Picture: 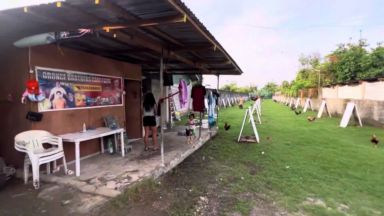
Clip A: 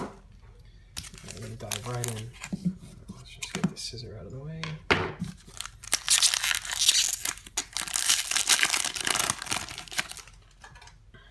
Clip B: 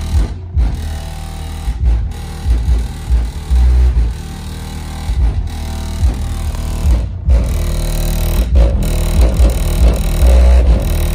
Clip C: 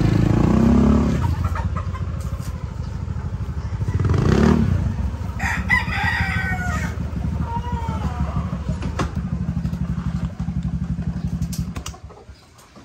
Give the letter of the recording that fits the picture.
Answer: C